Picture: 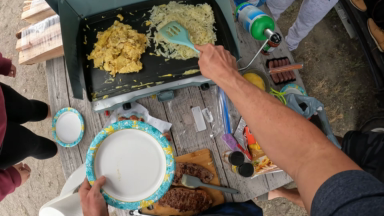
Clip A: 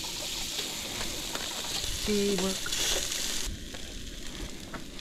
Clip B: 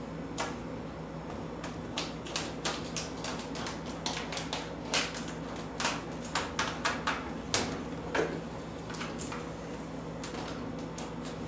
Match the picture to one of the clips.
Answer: A